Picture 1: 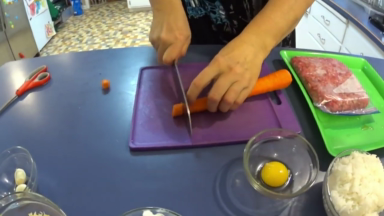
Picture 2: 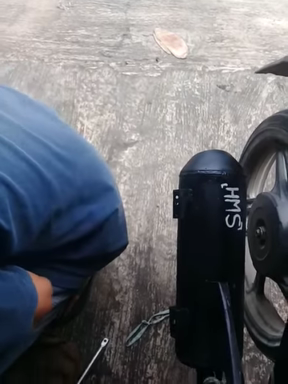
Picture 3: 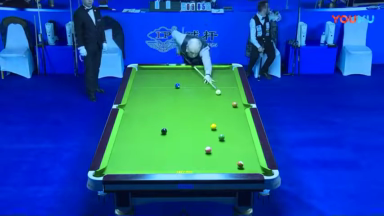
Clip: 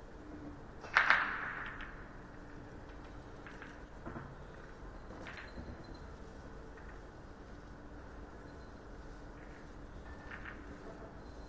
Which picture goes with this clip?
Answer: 3